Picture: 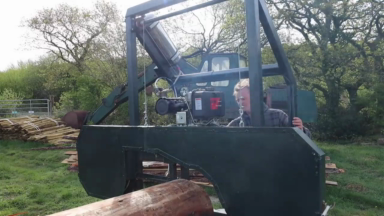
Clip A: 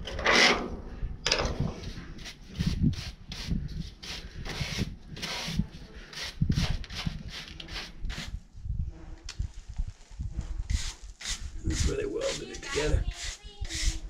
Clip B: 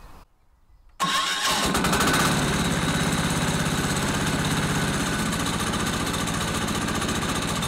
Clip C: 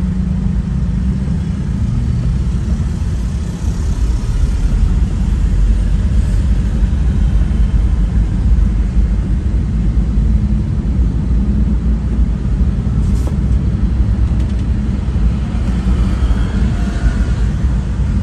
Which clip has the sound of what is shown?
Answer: B